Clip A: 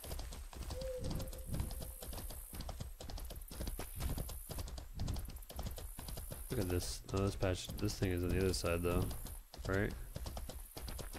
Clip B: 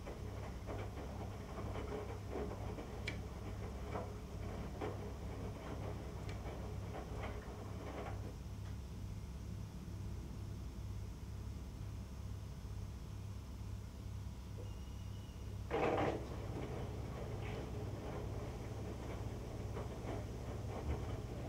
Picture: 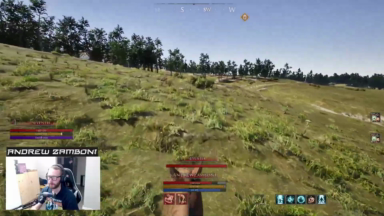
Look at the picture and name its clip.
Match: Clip A